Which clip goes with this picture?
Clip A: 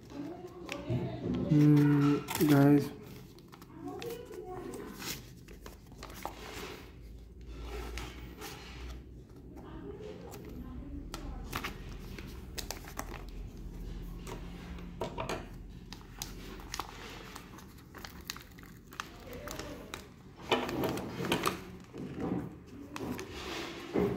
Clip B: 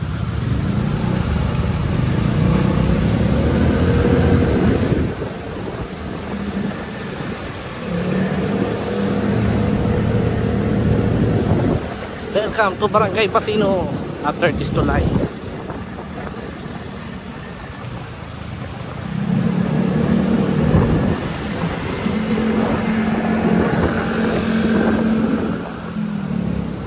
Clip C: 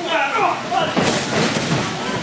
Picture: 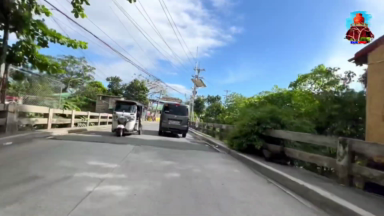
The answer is B